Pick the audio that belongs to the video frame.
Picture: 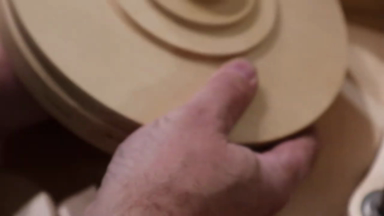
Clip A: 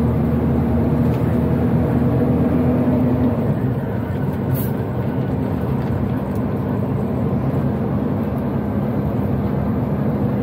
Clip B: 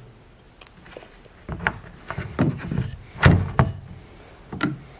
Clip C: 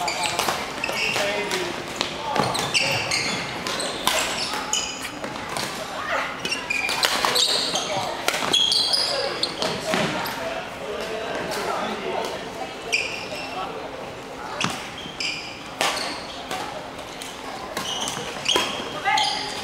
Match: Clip B